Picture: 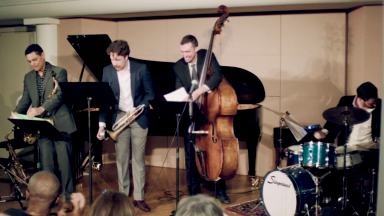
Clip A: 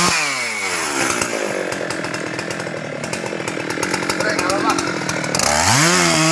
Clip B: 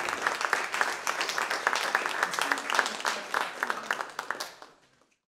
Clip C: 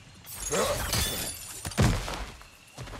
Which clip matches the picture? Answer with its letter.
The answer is B